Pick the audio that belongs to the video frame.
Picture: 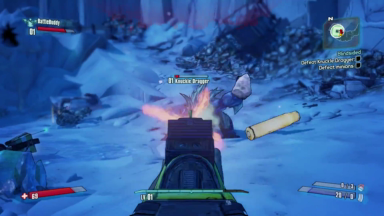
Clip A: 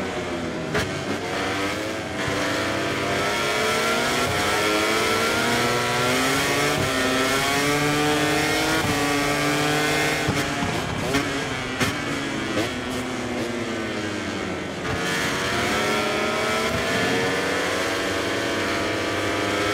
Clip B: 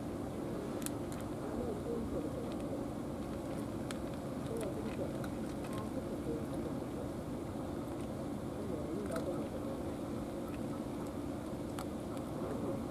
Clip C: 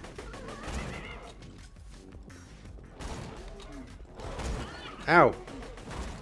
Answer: C